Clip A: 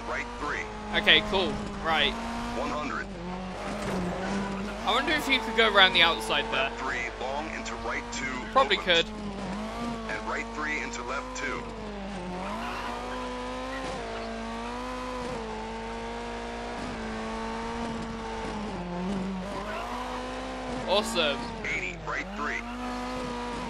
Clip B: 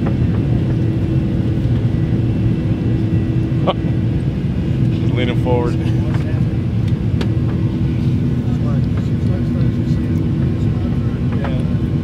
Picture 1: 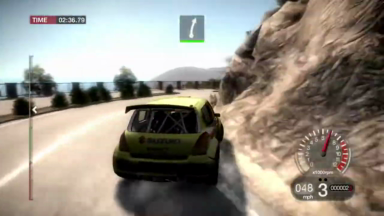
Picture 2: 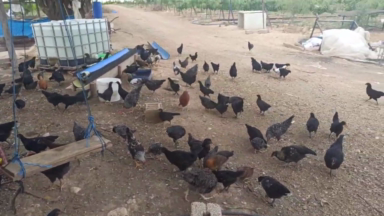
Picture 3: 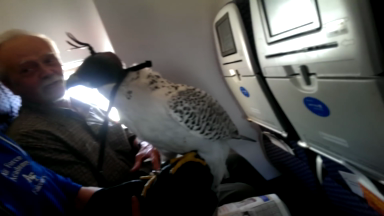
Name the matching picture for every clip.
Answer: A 1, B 3